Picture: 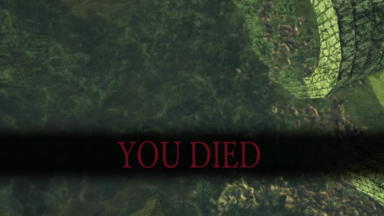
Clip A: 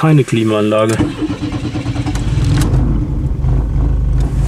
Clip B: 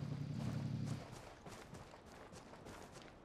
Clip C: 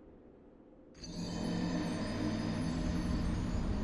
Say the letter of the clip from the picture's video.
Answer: C